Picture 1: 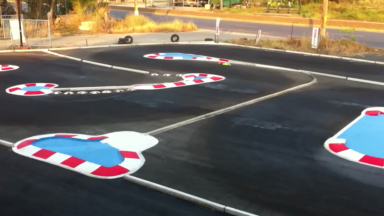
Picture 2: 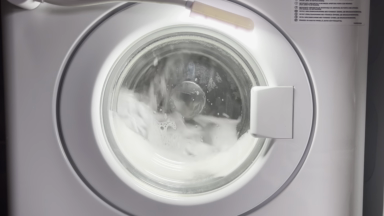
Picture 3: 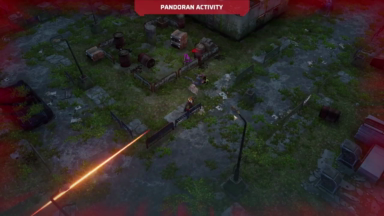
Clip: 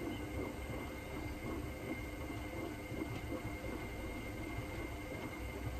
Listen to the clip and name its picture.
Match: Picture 2